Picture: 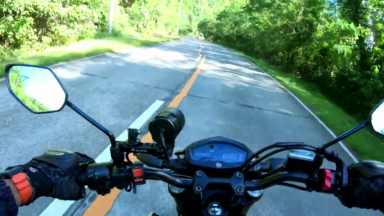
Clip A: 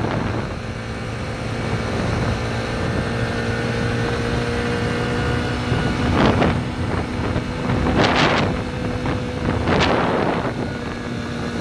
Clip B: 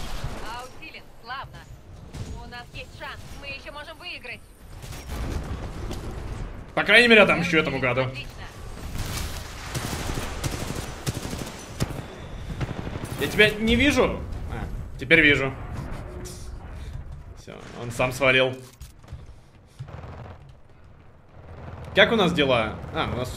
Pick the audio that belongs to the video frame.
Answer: A